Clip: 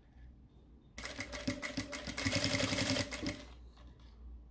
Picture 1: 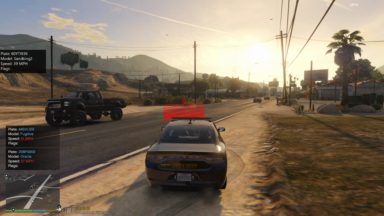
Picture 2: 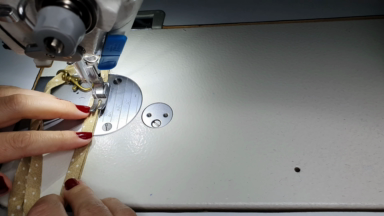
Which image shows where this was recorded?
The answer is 2